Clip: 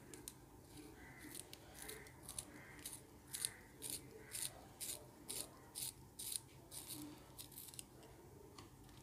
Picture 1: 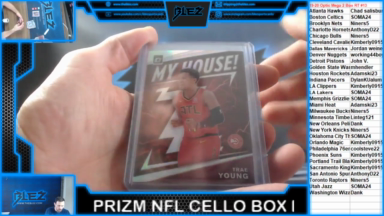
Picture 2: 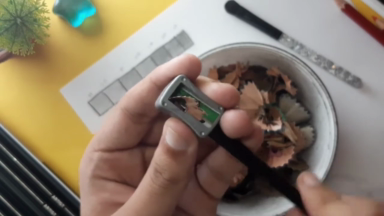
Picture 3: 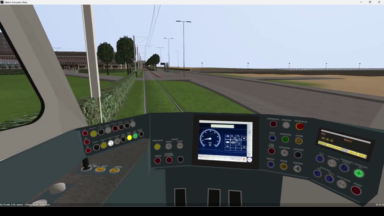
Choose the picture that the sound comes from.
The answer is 2